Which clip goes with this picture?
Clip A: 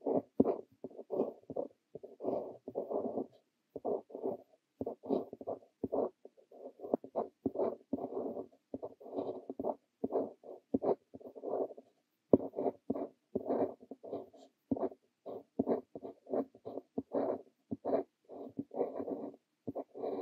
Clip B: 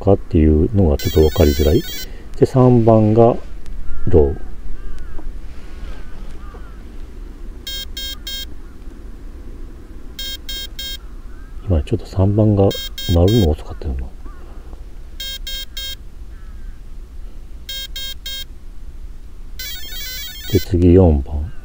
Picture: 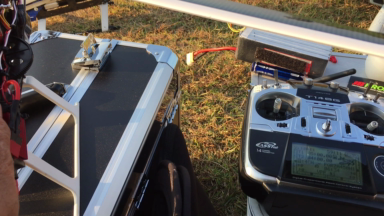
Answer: B